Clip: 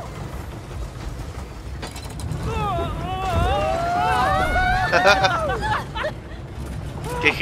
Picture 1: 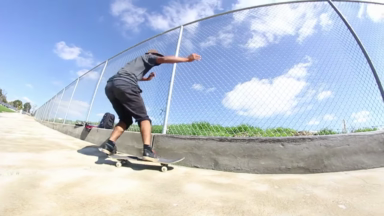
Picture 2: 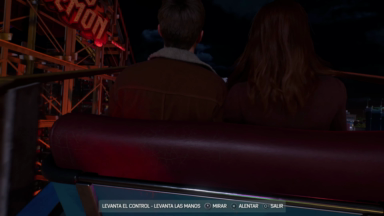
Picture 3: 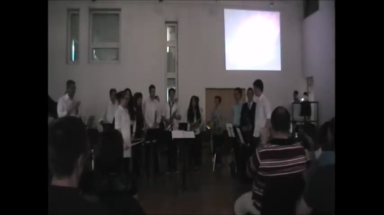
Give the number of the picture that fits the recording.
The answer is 2